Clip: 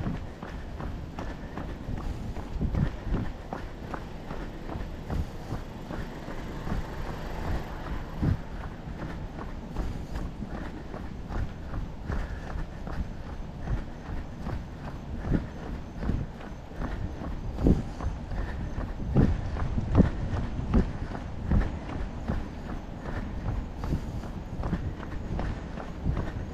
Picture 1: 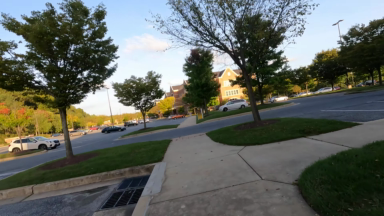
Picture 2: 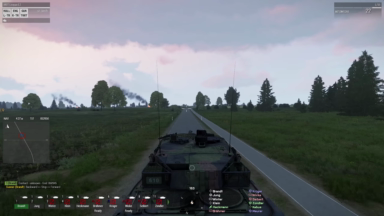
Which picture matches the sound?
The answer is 1